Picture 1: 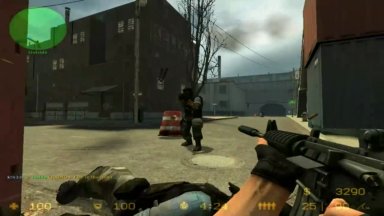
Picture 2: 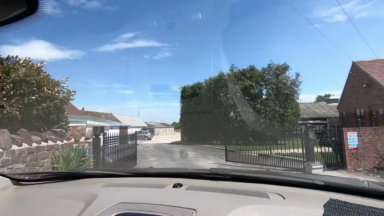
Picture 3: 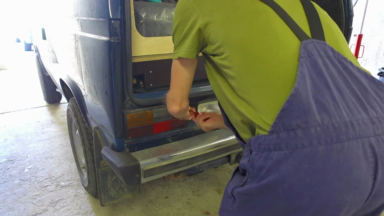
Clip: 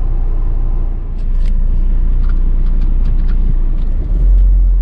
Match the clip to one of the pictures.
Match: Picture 2